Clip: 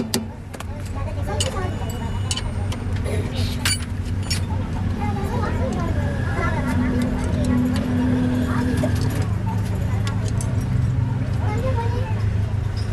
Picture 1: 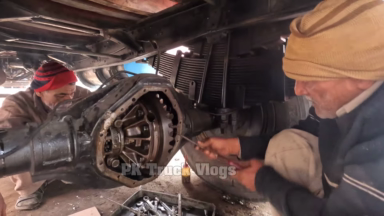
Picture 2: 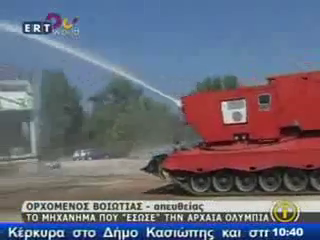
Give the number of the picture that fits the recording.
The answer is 1